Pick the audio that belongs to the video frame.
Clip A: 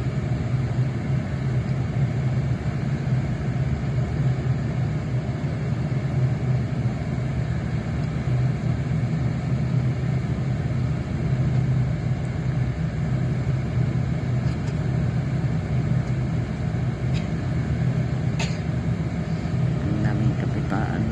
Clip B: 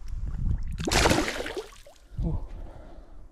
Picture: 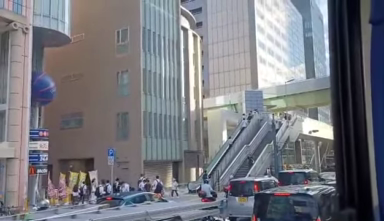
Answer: A